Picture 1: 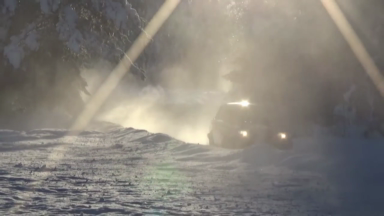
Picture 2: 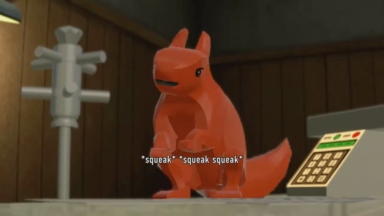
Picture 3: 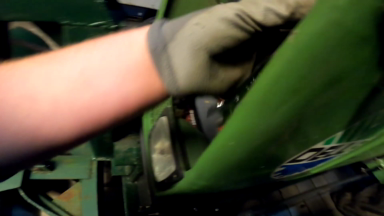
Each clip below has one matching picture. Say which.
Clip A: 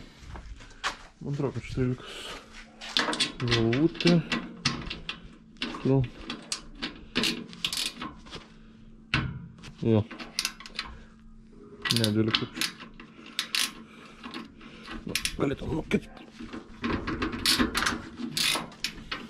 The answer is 3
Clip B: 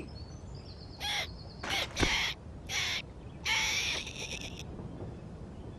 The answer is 2